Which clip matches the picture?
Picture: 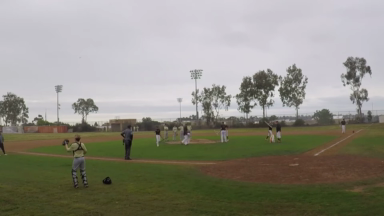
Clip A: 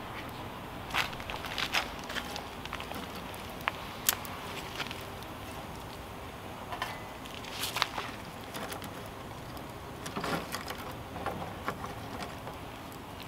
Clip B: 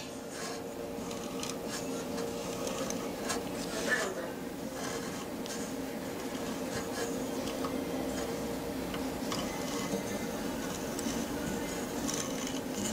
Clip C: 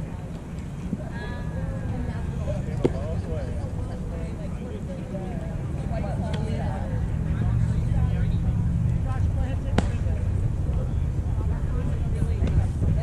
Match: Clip C